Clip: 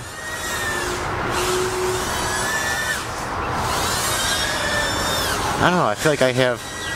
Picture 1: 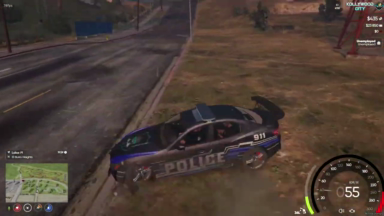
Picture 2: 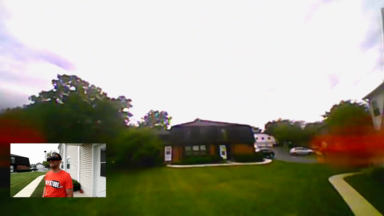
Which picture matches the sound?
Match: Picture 2